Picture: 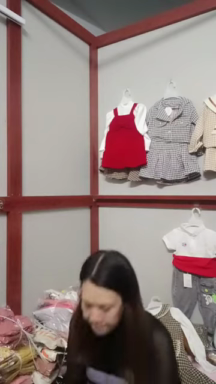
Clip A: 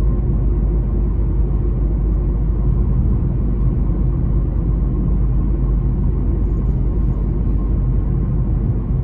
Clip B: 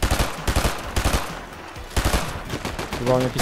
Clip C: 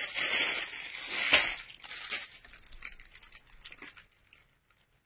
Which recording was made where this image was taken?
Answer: C